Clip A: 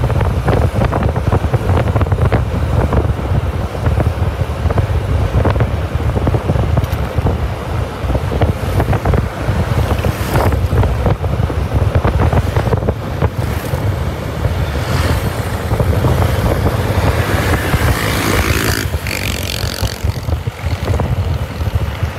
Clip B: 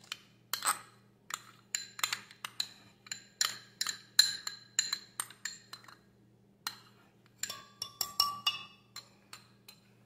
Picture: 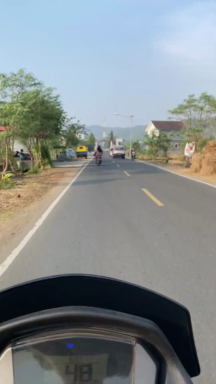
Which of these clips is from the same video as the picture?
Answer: A